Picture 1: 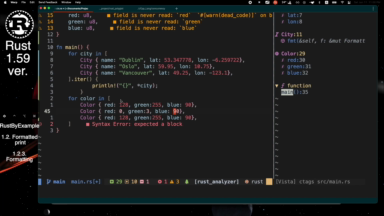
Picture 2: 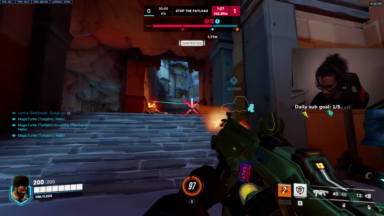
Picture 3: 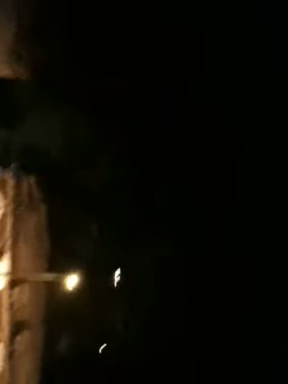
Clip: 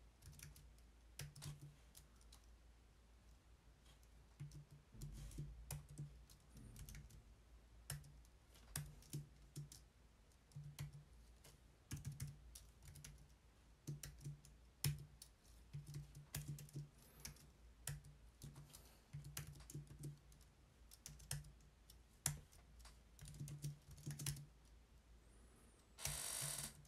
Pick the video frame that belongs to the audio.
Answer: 1